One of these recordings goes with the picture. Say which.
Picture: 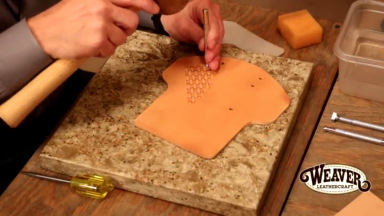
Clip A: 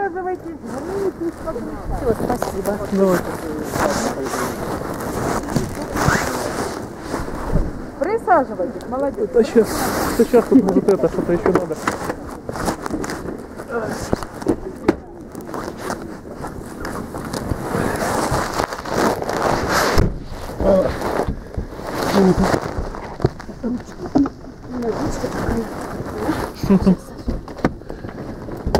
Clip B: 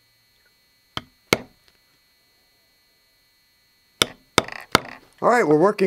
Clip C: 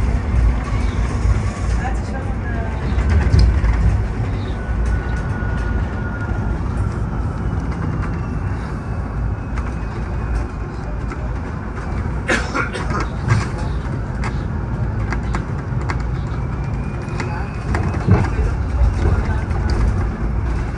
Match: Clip B